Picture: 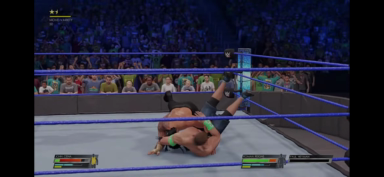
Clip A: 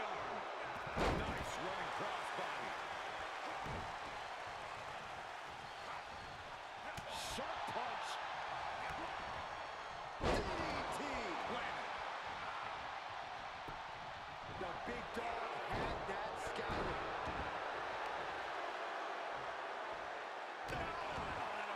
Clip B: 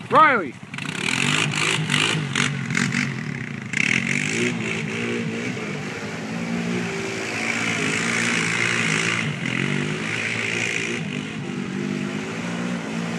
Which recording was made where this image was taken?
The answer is A